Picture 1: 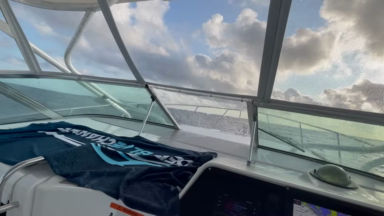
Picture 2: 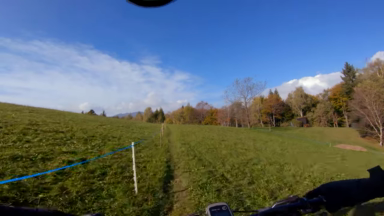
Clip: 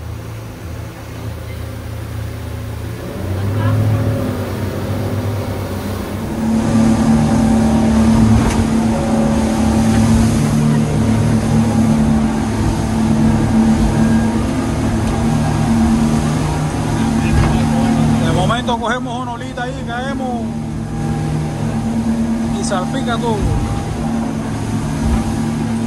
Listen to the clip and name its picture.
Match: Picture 1